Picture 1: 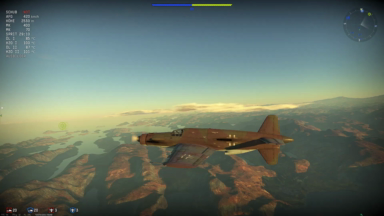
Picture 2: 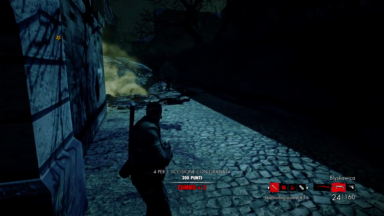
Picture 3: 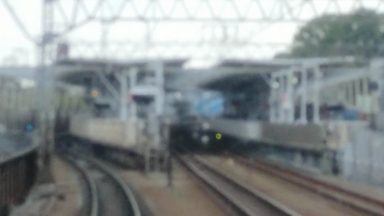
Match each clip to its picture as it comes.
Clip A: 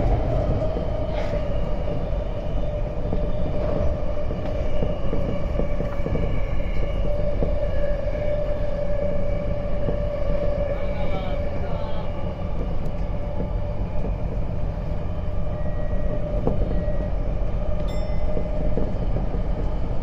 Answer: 3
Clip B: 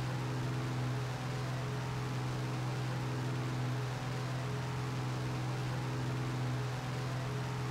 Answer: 1